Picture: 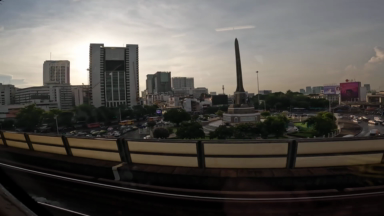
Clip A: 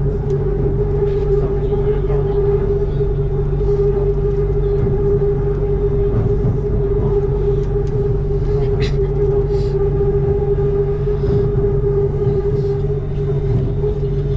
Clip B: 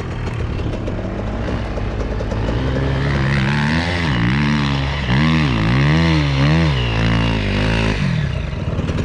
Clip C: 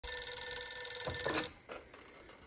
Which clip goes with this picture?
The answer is A